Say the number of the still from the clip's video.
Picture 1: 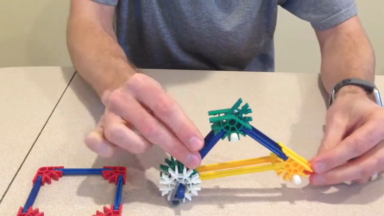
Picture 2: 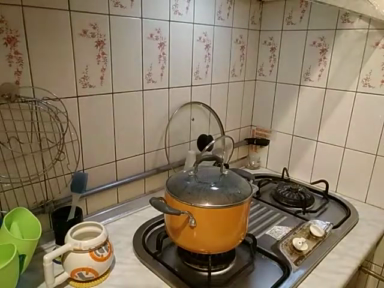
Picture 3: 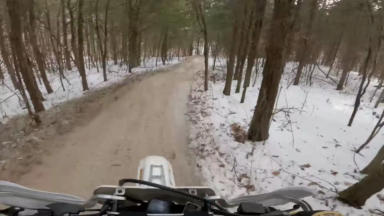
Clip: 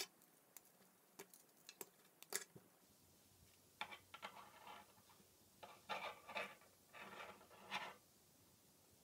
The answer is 1